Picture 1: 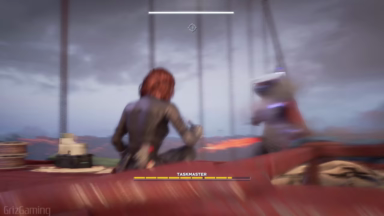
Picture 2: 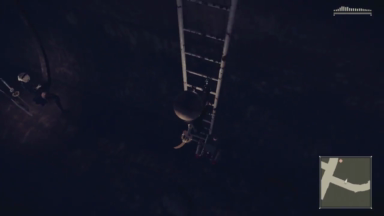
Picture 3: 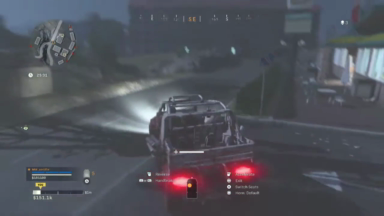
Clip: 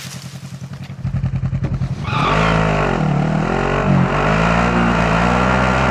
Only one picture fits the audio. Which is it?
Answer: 3